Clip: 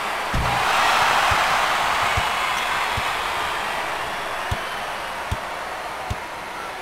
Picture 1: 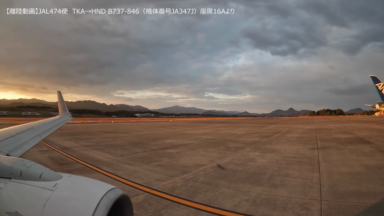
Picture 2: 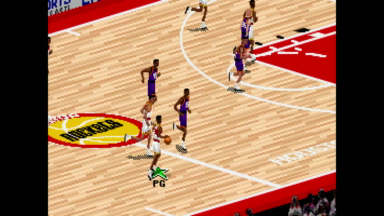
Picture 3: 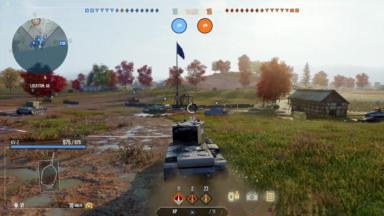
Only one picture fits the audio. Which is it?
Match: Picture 2